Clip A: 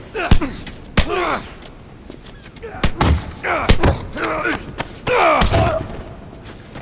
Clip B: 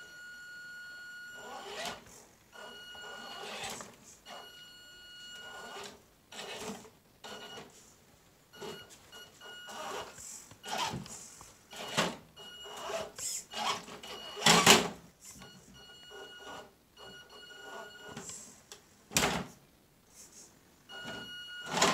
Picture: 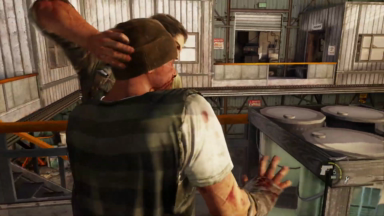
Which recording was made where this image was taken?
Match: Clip A